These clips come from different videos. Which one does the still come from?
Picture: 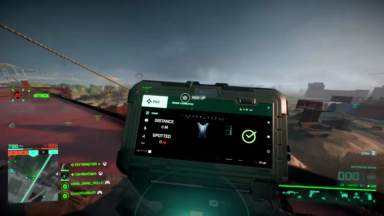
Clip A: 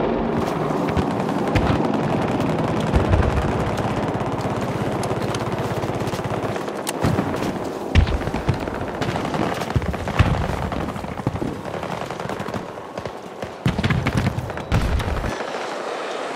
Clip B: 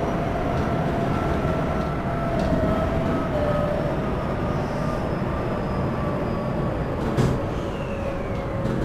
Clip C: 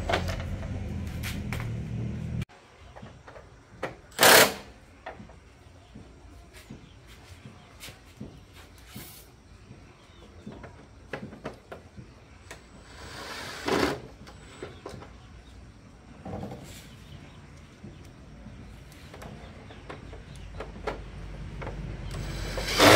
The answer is A